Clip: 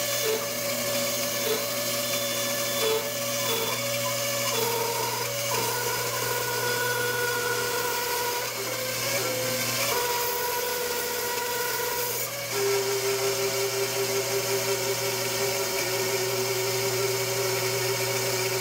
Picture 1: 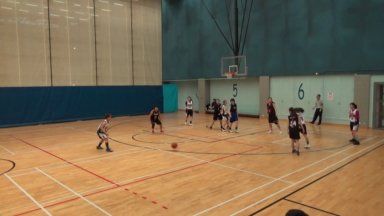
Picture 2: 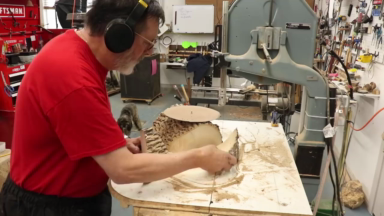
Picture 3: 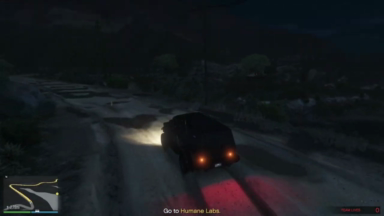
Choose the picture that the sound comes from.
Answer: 2